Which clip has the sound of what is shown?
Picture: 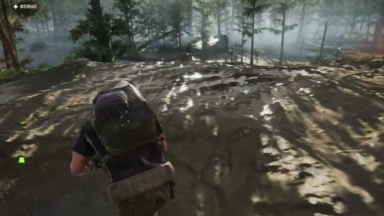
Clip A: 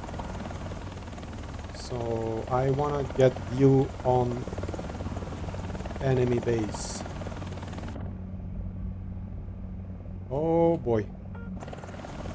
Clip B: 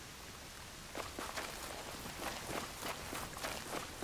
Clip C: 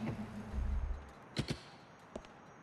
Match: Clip B